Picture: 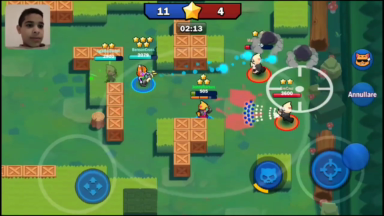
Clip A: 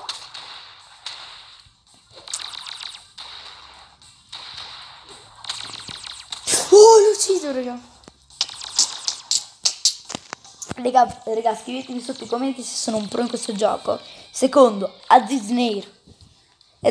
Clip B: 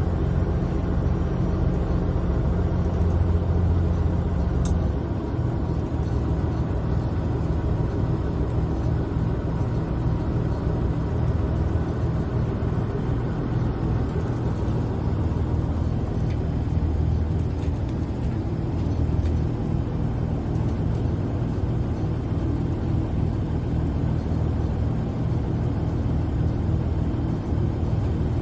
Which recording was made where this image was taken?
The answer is A